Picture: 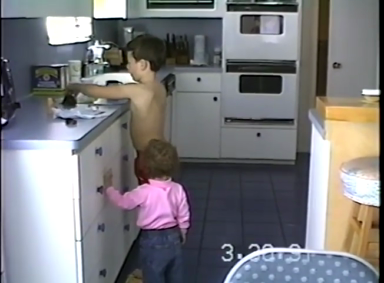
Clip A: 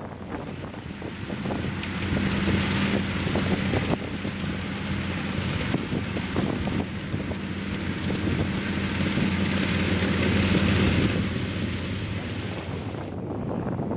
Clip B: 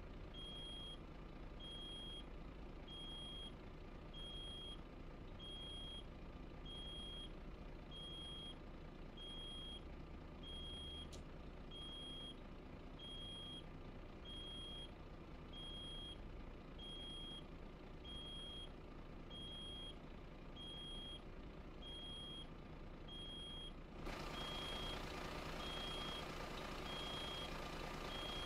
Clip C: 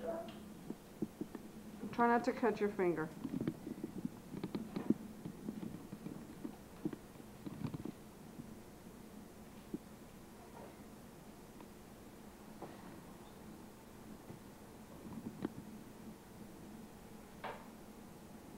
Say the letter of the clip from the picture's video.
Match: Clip C